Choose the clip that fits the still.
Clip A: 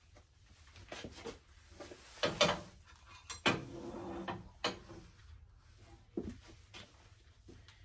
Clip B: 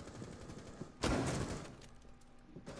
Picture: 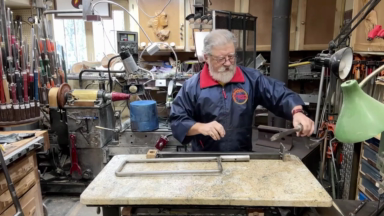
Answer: A